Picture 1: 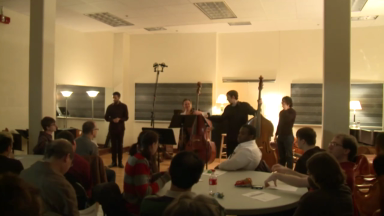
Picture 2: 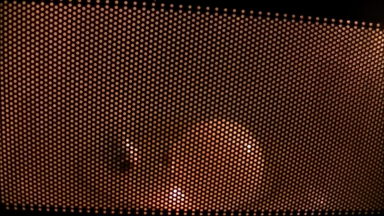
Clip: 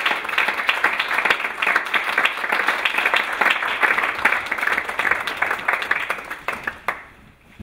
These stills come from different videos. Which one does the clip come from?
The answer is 1